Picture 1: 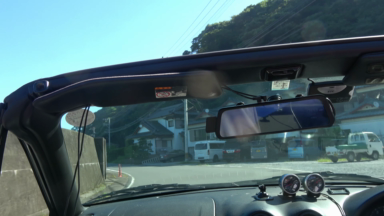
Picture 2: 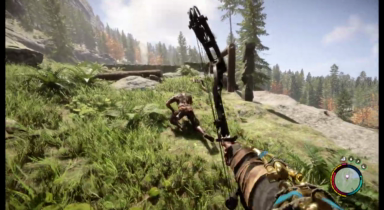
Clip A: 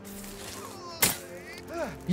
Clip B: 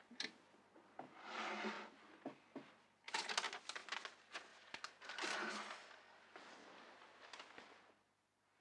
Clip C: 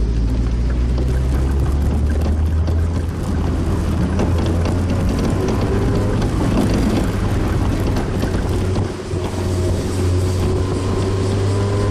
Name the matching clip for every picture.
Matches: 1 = C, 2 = A